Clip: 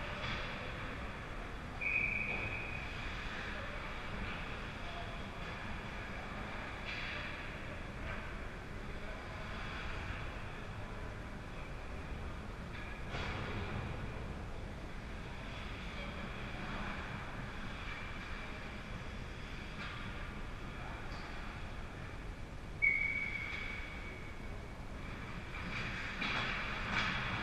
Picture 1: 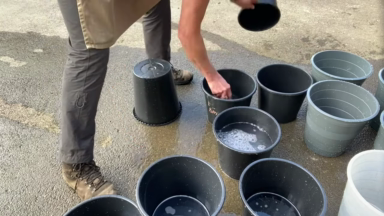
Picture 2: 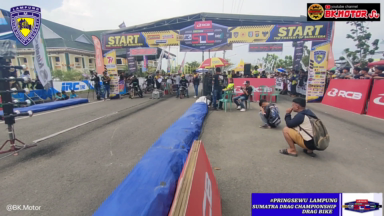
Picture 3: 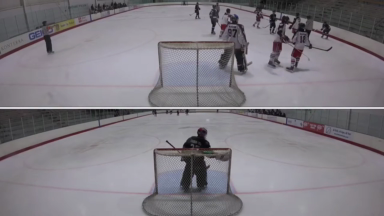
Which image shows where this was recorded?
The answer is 3